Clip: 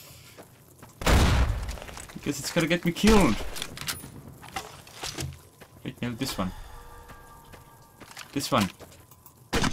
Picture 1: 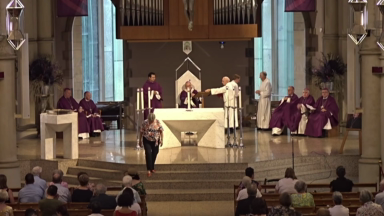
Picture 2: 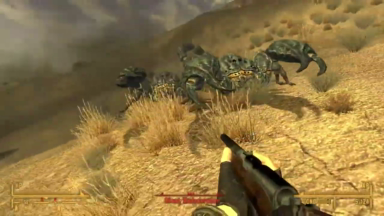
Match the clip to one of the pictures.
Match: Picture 2